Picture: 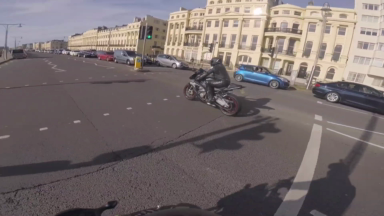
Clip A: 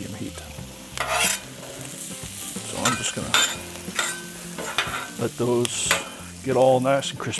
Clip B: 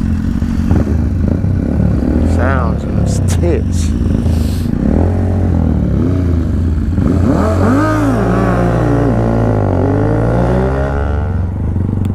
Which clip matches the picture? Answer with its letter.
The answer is B